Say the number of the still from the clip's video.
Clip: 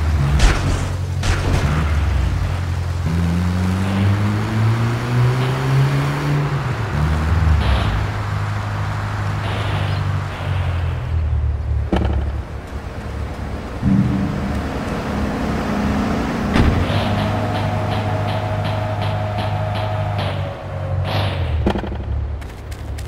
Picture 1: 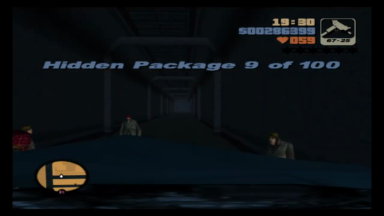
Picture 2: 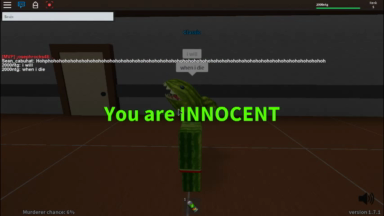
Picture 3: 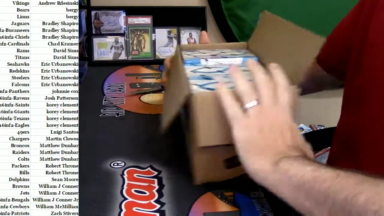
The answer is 1